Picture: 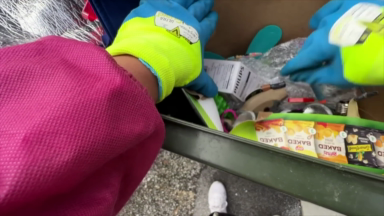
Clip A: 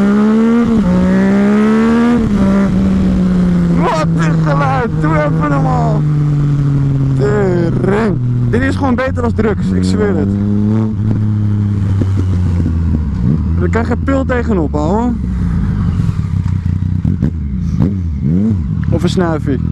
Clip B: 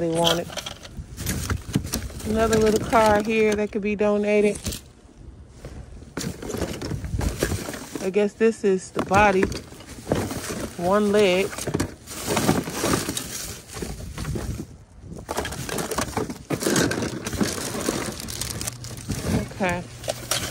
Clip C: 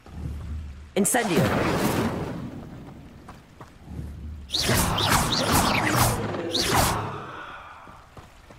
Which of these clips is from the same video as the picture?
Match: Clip B